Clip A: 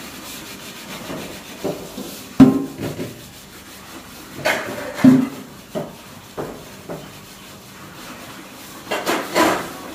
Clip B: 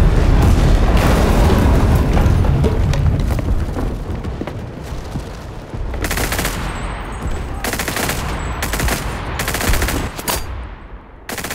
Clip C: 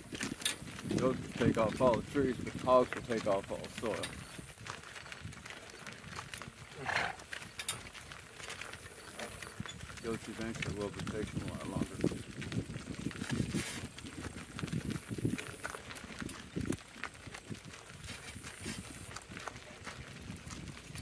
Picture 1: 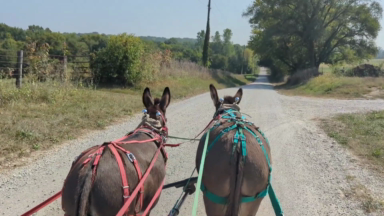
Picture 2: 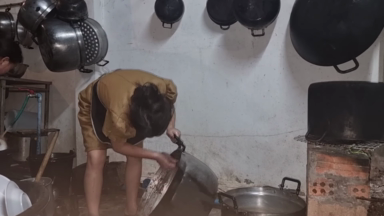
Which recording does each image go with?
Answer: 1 C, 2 A